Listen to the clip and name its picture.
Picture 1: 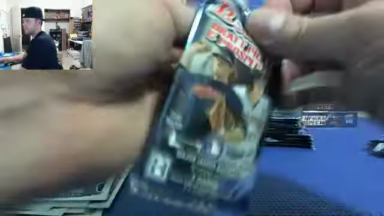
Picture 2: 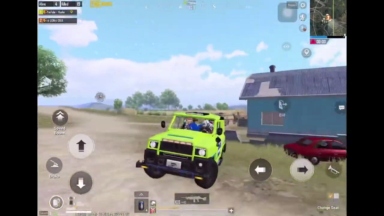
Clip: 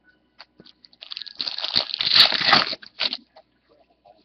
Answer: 1